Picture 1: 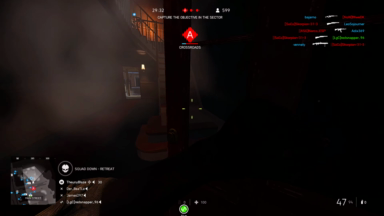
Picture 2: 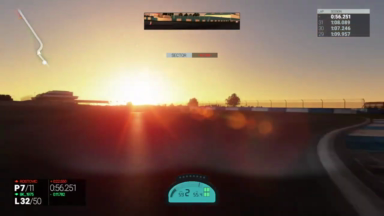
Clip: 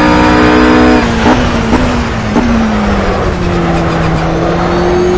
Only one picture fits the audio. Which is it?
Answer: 2